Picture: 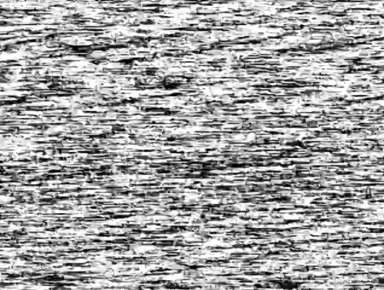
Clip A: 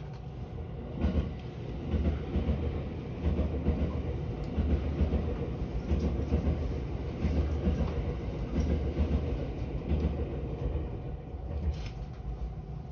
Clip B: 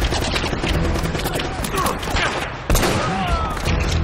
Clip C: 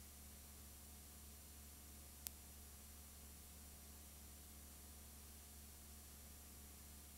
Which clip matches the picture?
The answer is C